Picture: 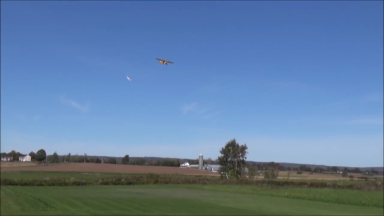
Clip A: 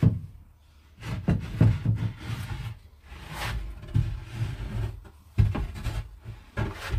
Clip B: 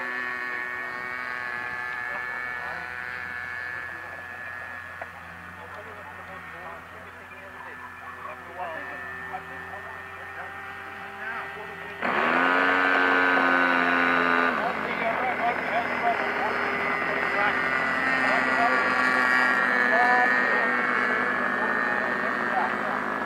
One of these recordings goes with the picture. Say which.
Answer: B